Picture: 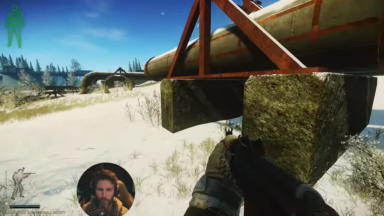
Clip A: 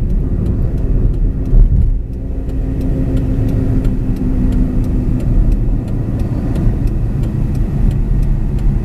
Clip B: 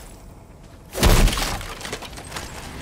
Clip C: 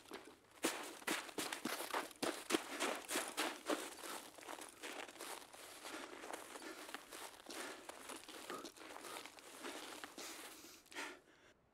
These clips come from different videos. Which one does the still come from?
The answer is C